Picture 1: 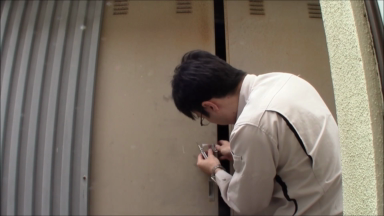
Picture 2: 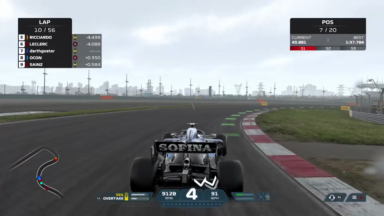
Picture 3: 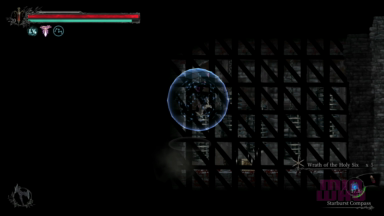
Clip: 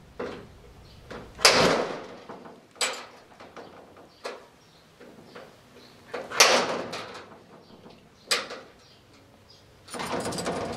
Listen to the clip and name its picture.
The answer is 1